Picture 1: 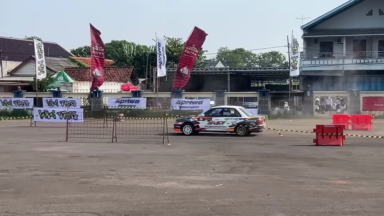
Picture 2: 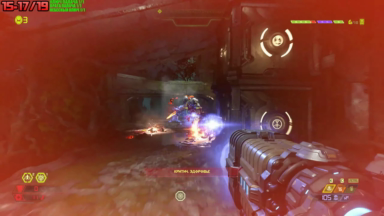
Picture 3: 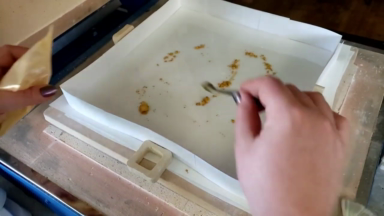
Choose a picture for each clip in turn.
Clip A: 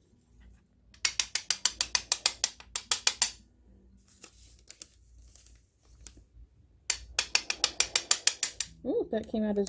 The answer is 3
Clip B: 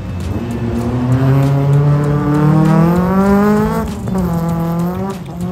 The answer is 1